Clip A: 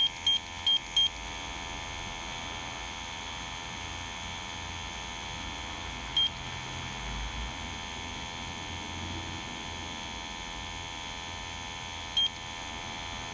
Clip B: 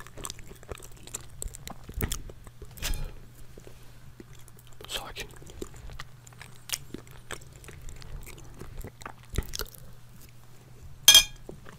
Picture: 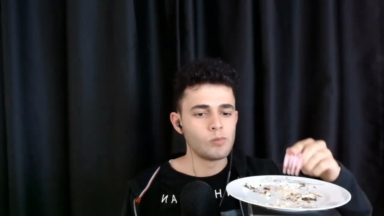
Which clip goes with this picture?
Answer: B